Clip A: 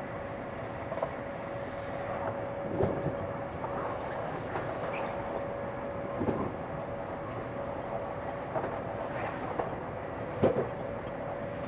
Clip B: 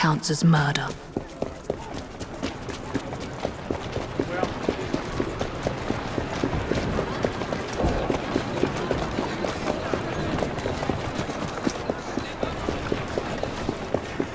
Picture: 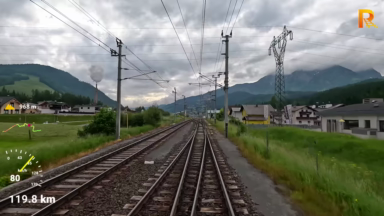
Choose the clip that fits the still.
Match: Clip A